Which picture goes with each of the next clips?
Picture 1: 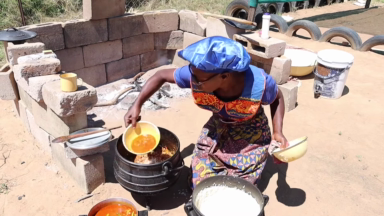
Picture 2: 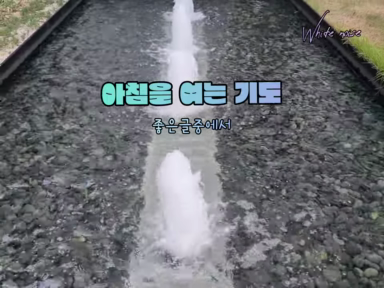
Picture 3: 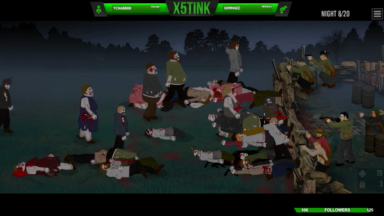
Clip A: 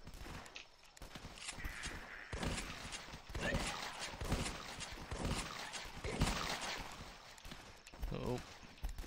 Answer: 3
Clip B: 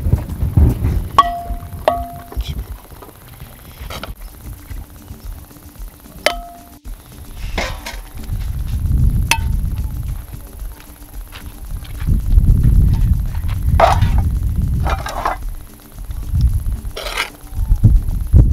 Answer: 1